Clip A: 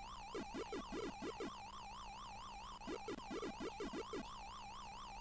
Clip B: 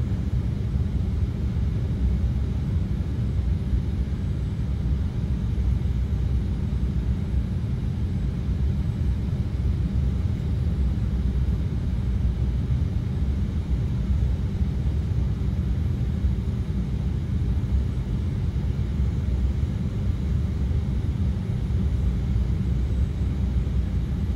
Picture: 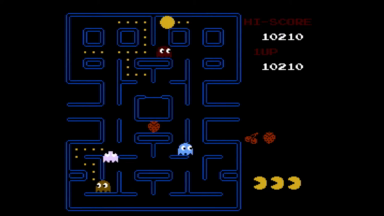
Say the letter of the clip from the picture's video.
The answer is A